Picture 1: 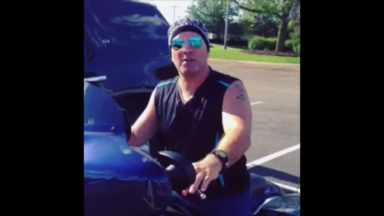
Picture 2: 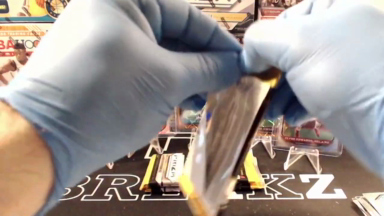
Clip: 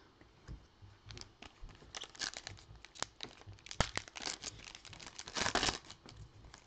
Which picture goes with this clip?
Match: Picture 2